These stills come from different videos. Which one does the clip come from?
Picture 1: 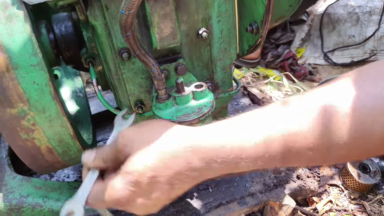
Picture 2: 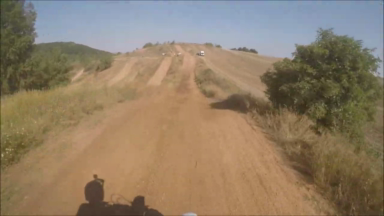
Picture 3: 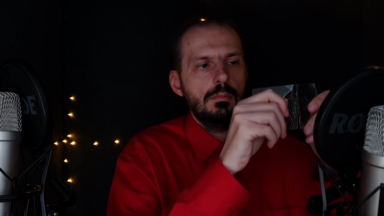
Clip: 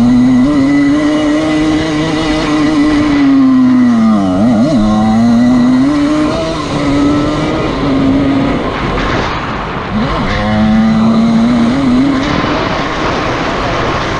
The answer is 2